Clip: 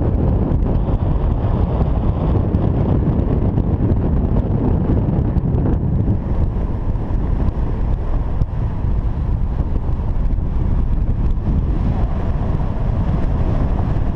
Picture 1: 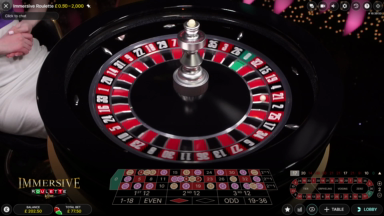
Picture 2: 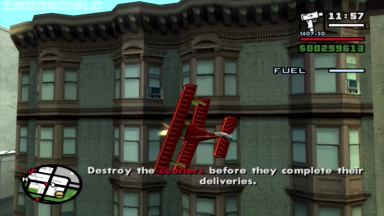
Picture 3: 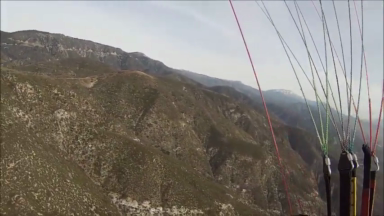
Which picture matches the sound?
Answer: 3